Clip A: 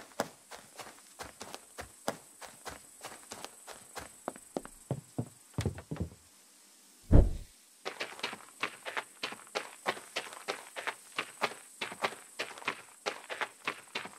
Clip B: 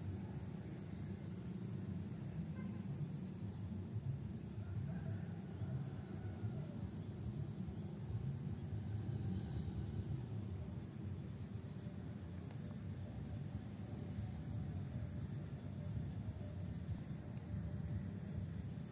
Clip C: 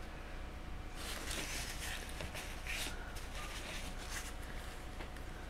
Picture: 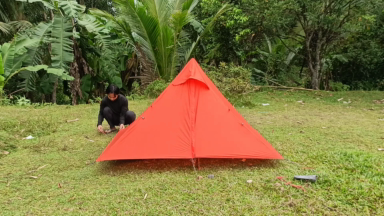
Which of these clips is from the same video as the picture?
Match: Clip B